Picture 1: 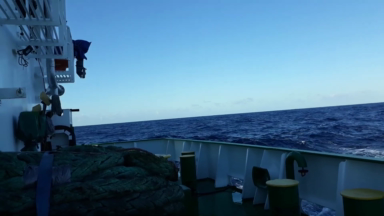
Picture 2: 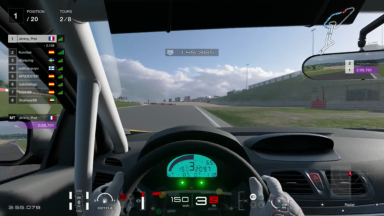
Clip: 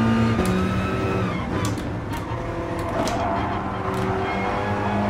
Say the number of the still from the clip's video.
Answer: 2